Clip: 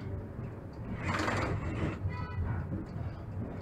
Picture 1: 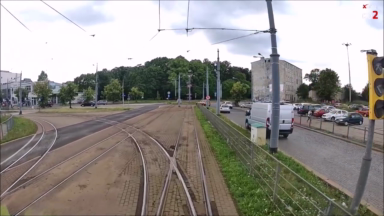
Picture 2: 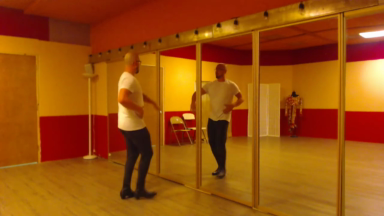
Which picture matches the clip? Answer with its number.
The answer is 1